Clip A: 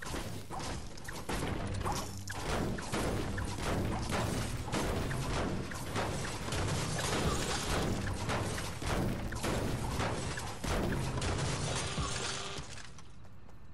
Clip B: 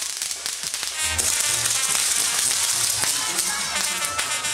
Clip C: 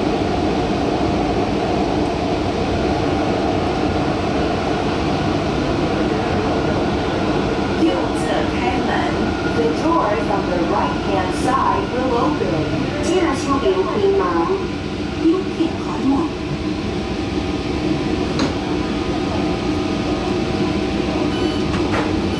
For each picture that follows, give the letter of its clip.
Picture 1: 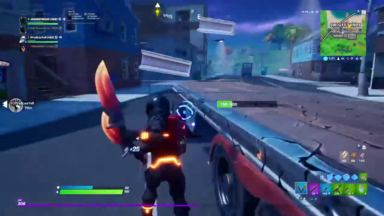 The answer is A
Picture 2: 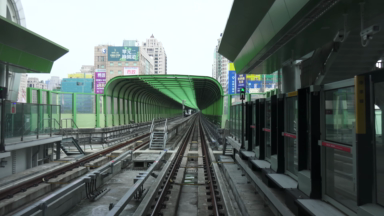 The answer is C